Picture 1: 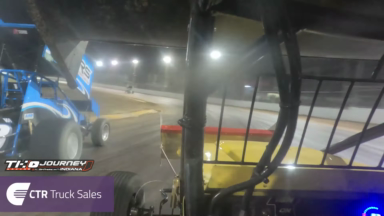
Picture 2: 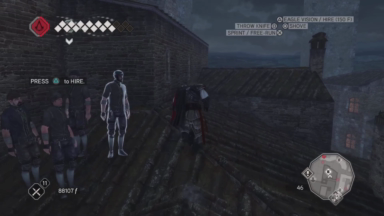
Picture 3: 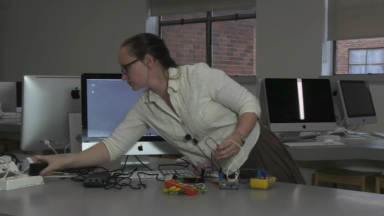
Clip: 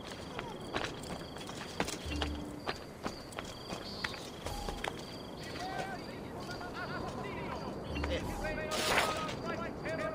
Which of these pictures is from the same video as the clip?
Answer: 2